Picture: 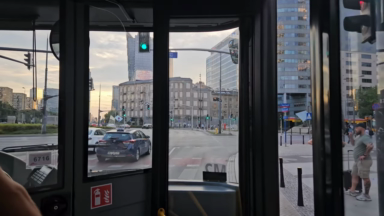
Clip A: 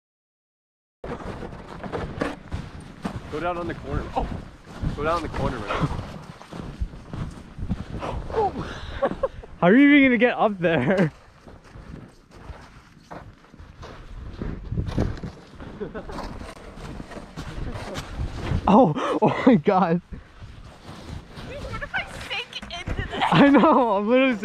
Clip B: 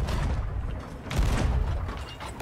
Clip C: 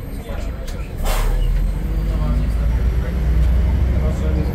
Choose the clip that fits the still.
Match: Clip C